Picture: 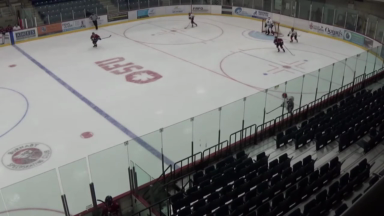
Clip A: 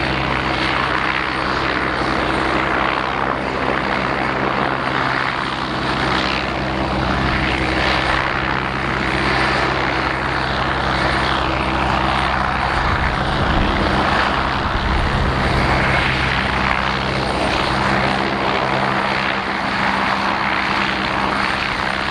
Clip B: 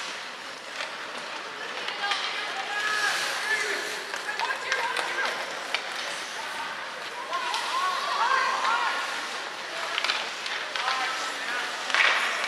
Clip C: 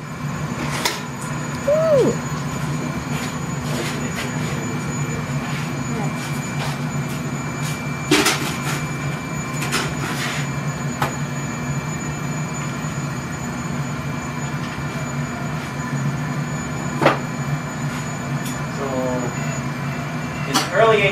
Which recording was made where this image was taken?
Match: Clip B